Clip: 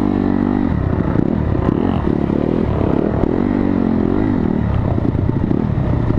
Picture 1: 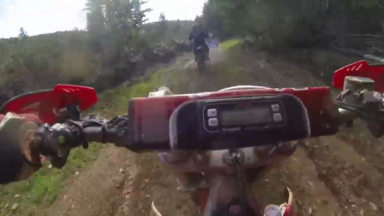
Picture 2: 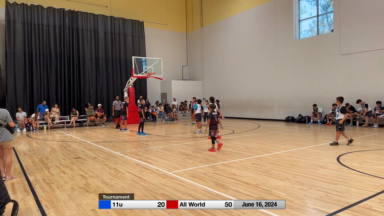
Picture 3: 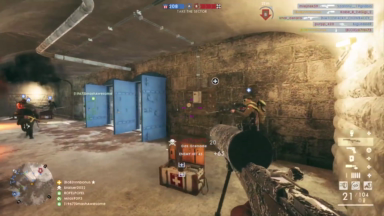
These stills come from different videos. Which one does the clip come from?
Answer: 1